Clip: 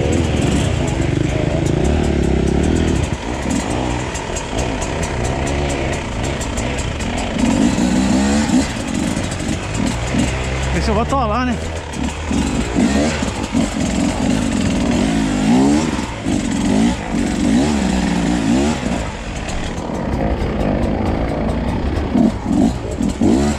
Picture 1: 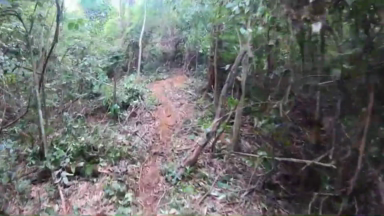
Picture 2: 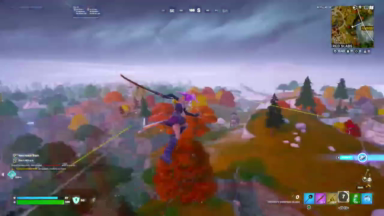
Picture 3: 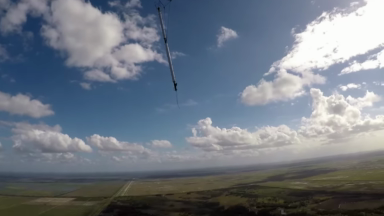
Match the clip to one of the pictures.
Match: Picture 1